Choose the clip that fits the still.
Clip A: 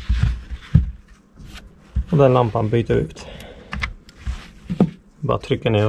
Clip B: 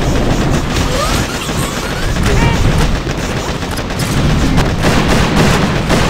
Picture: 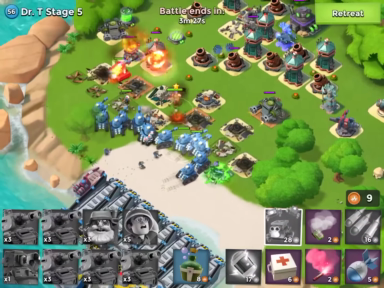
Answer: B